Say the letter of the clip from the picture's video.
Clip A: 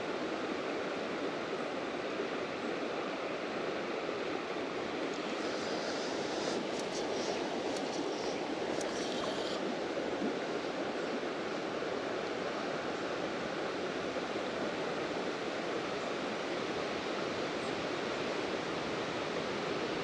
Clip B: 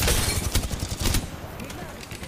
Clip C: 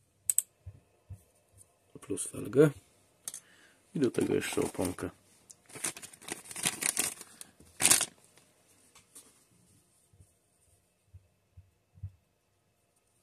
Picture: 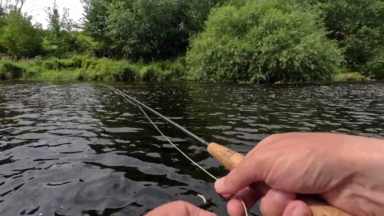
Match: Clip A